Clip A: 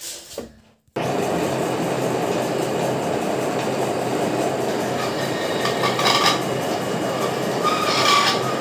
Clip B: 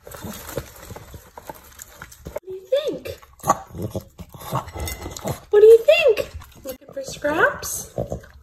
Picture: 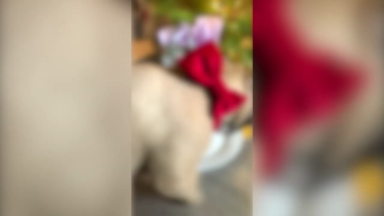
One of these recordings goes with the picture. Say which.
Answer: B